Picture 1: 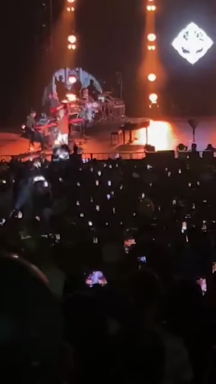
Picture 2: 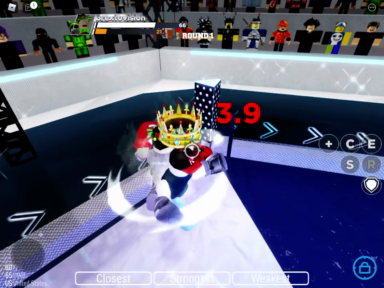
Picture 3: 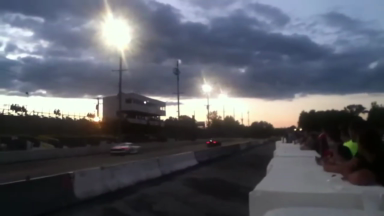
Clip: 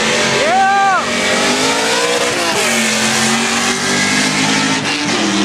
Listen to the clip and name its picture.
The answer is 3